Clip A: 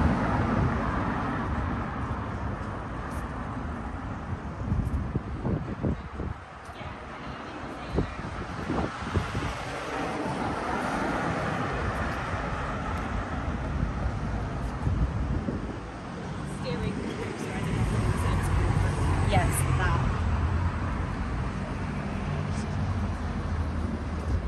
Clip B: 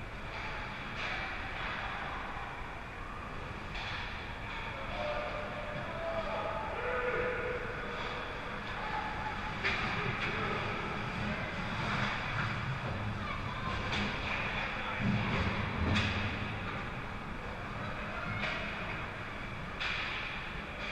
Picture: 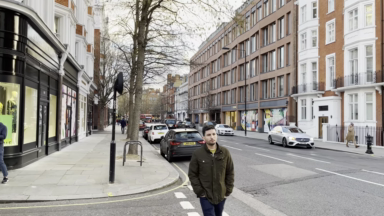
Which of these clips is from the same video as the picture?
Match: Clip A